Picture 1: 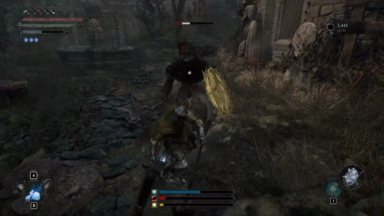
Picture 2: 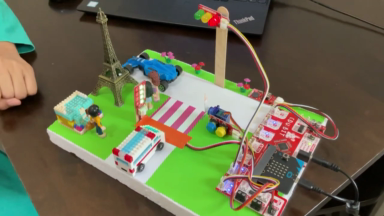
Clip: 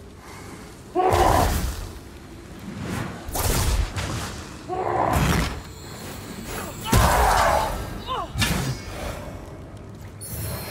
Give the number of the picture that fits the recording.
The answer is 1